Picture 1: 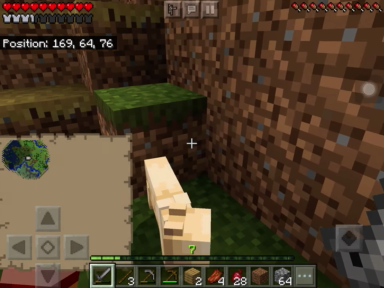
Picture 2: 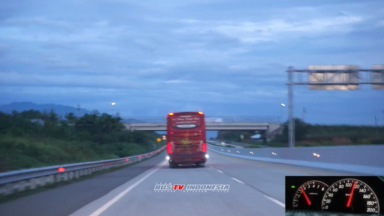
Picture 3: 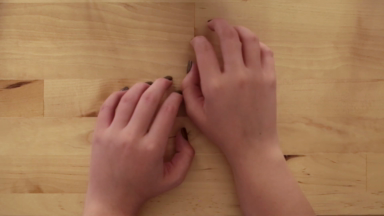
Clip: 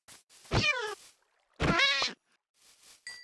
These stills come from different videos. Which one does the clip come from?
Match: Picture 1